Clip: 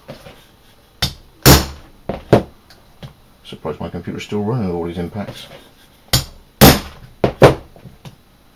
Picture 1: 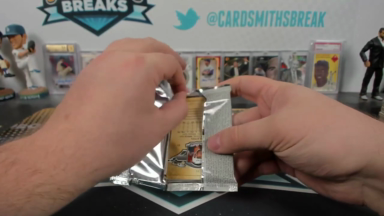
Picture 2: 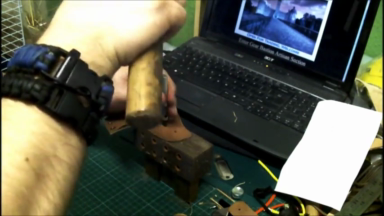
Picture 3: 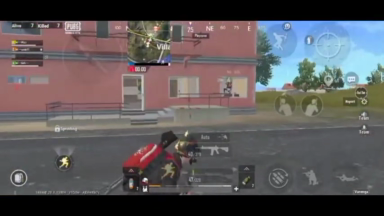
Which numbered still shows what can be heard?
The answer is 2